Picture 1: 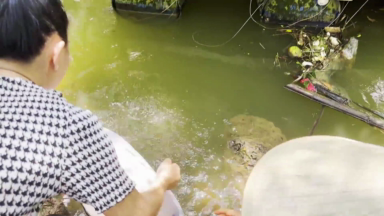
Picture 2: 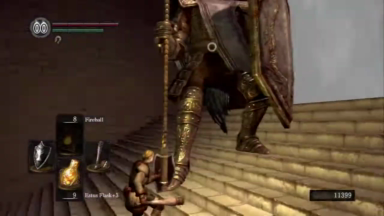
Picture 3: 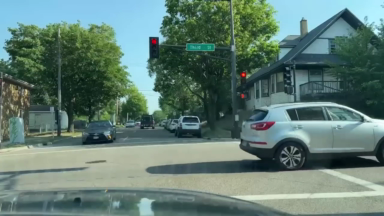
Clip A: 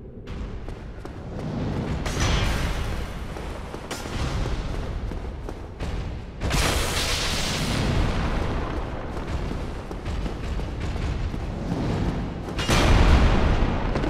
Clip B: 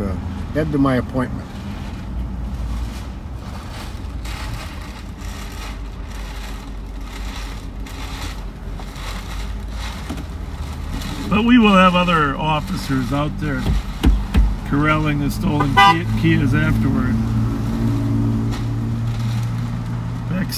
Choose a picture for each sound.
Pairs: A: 2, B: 3